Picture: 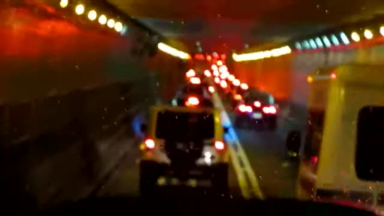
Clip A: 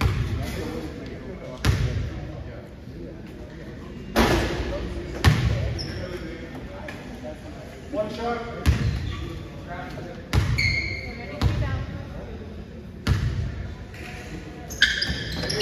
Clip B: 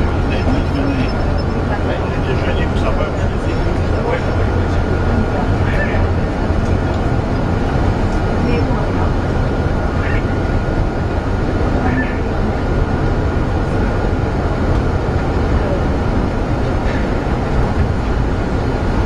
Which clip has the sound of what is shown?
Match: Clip B